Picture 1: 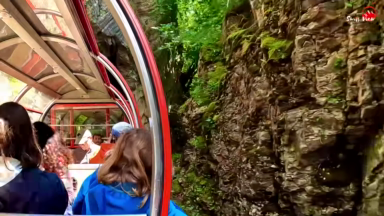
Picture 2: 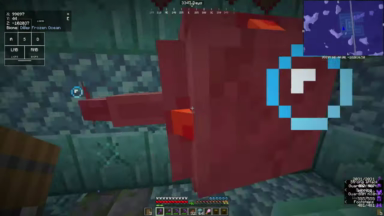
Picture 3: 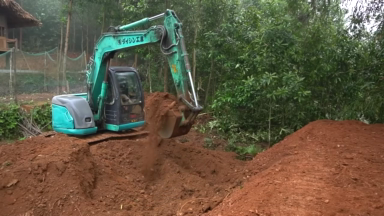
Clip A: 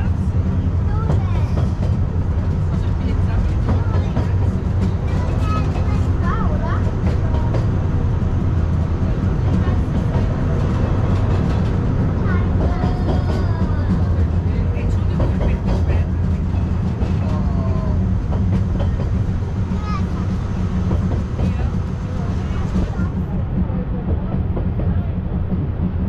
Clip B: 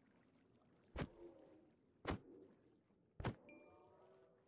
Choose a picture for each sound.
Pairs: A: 1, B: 2